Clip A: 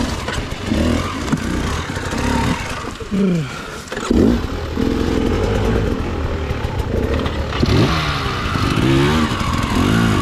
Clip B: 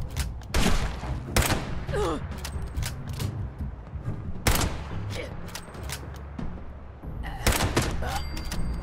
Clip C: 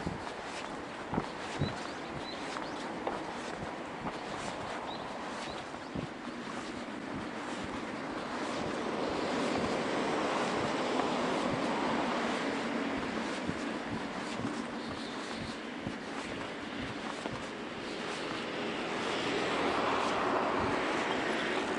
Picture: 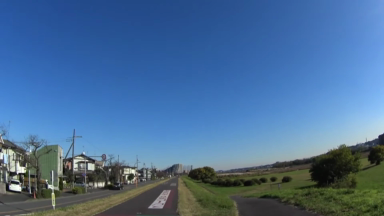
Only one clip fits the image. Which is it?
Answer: C